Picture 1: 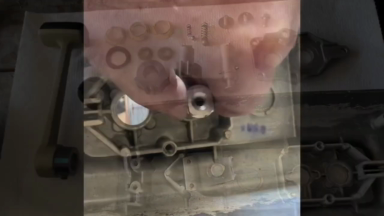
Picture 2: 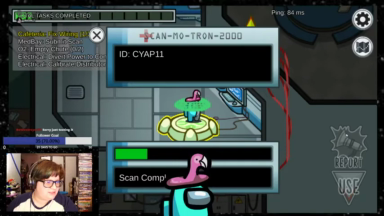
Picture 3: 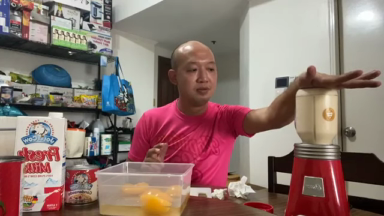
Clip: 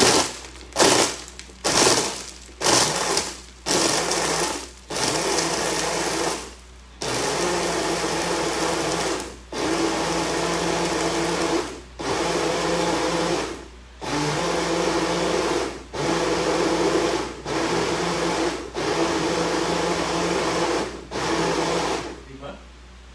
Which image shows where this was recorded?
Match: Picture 3